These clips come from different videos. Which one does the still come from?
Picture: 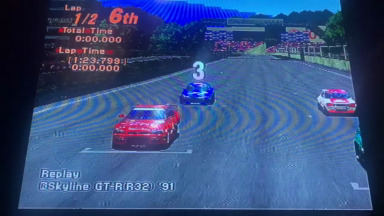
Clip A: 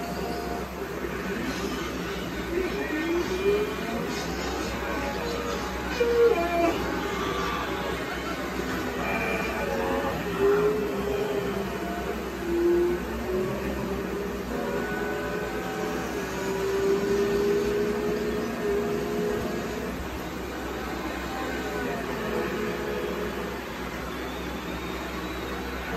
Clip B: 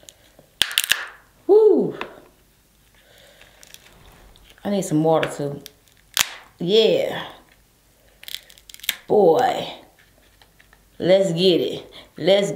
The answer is A